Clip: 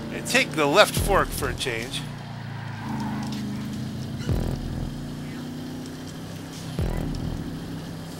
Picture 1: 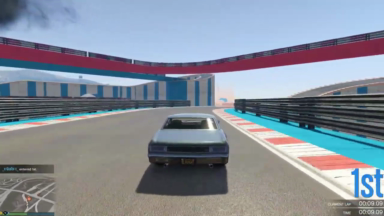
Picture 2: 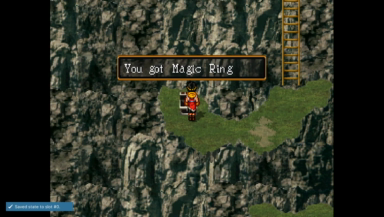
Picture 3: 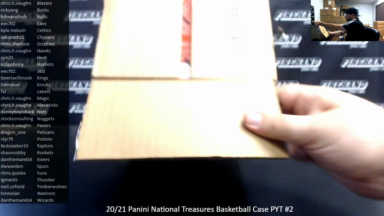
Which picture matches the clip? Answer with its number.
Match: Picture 1